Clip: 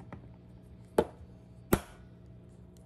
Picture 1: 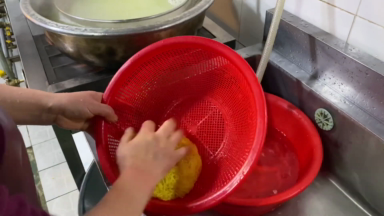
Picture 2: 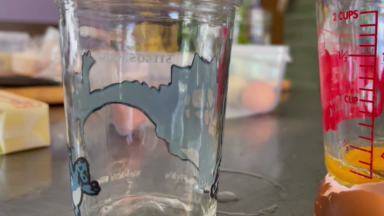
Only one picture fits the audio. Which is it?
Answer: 2